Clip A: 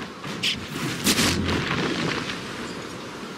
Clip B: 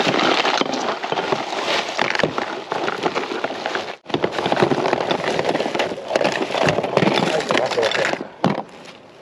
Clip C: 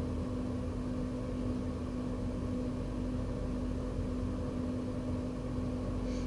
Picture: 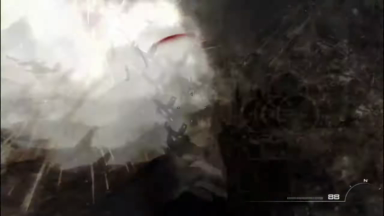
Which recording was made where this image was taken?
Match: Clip A